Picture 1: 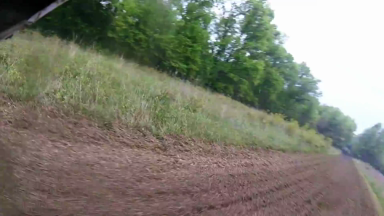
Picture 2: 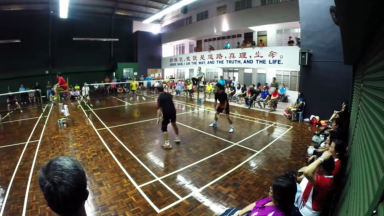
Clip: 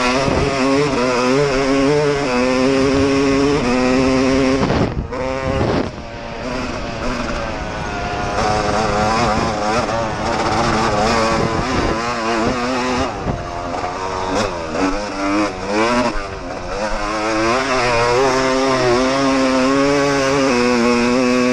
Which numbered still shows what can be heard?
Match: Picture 1